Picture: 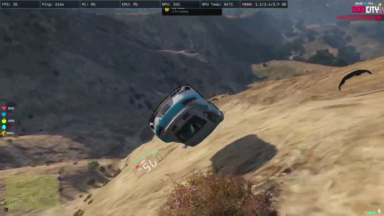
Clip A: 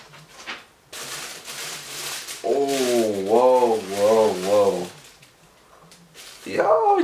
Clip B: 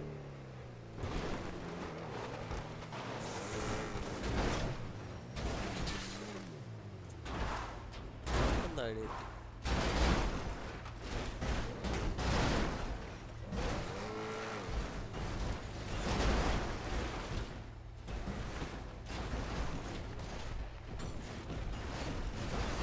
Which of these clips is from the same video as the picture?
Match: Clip B